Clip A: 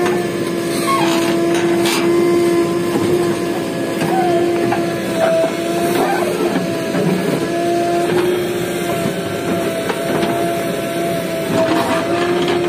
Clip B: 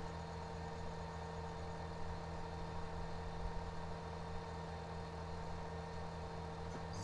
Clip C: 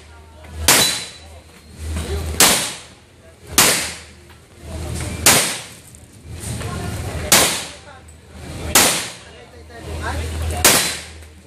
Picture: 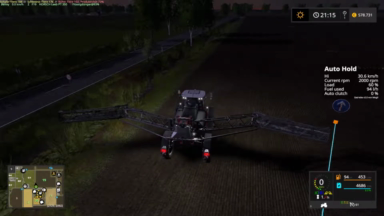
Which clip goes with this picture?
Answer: B